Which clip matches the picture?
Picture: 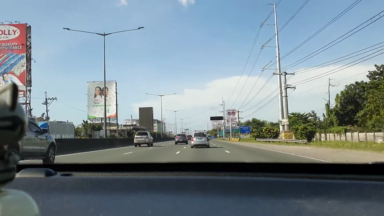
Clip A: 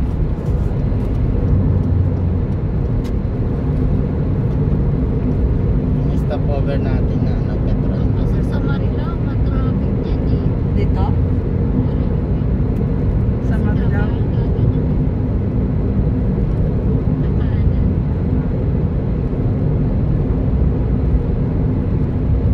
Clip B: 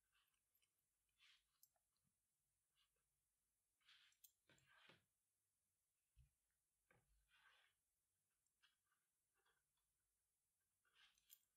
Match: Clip A